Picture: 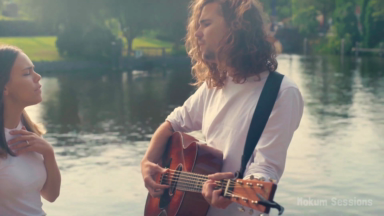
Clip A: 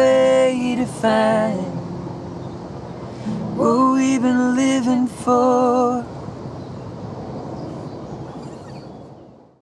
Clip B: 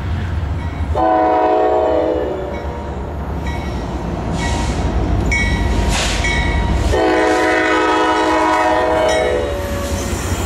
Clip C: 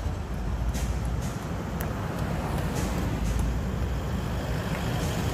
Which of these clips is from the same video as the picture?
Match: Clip A